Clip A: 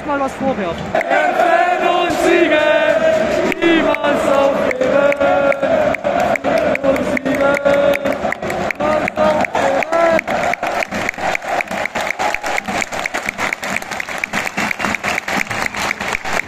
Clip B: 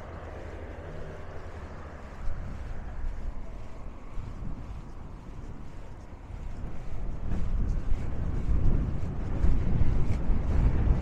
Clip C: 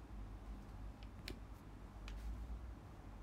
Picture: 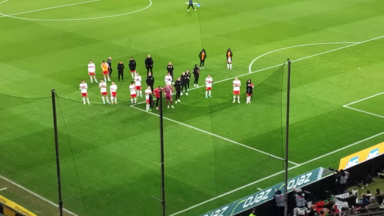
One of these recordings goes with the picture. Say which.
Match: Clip A